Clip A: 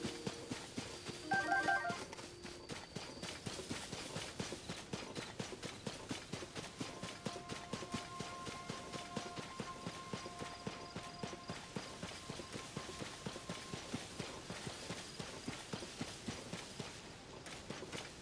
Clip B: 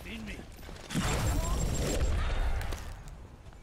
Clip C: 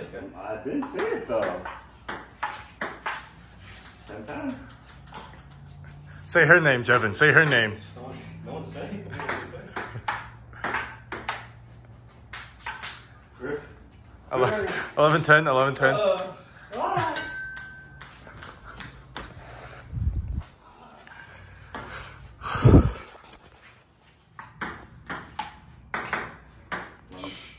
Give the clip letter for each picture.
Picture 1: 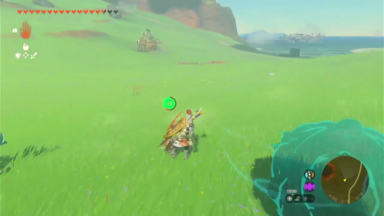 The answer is A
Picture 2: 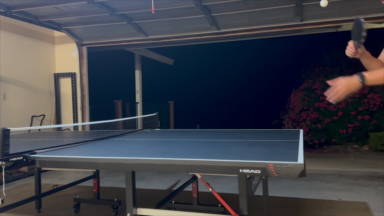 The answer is C